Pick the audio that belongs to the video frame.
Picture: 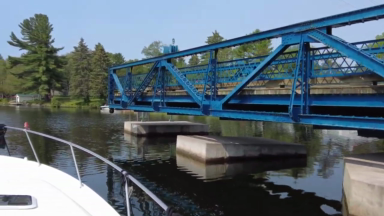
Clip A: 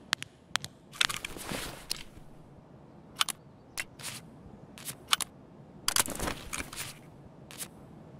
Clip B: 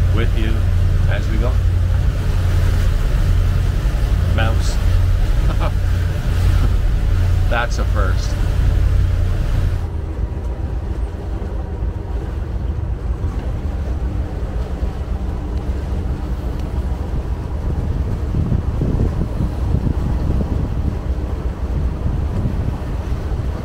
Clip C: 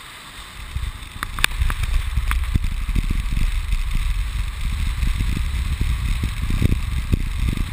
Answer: B